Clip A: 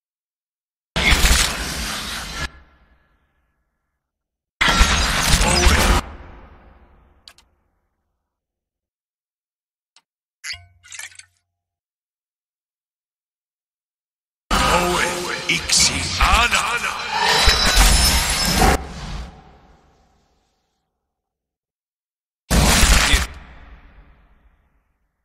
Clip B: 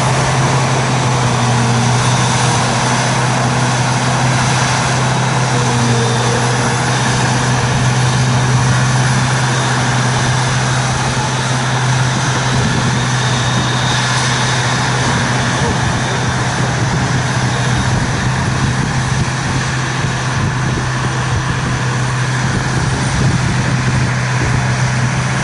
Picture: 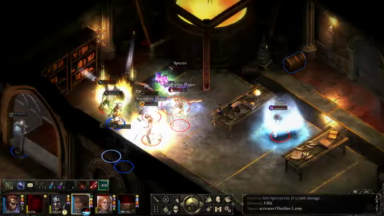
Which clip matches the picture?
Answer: A